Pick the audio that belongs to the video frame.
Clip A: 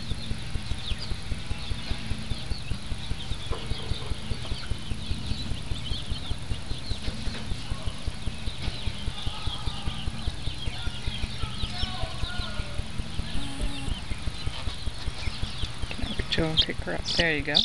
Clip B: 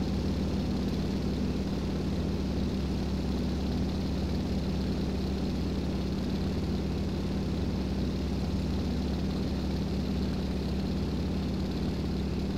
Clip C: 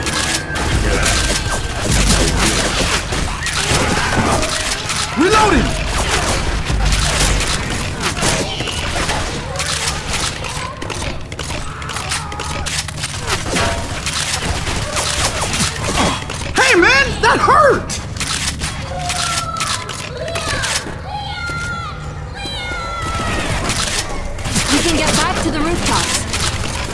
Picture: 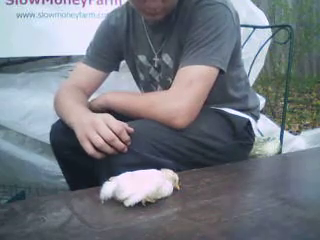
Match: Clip A